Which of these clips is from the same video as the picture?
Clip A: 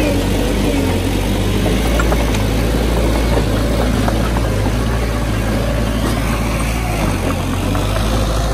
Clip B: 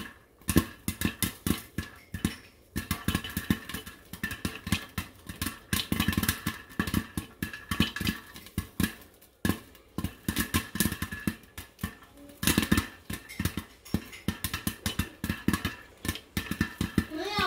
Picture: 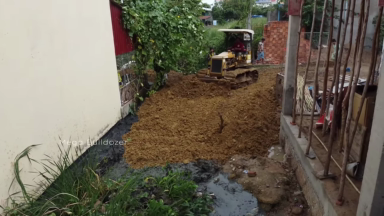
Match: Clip A